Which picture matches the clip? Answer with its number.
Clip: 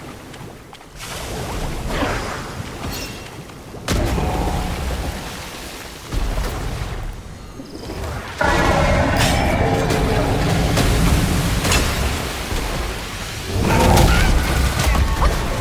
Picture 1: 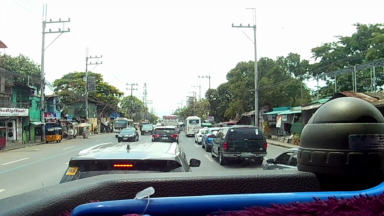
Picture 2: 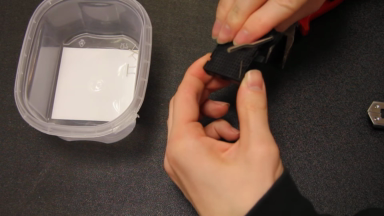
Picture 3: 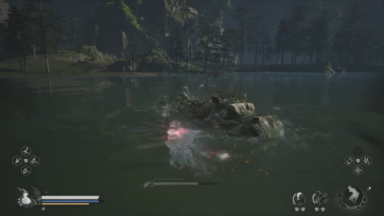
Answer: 3